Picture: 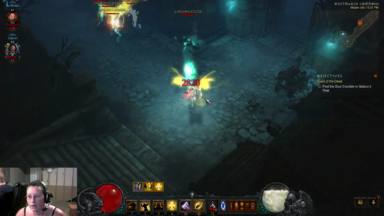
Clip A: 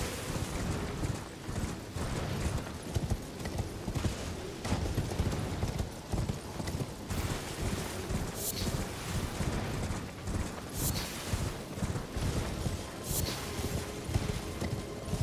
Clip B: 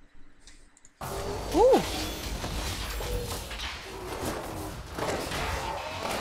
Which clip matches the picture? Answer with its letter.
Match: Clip B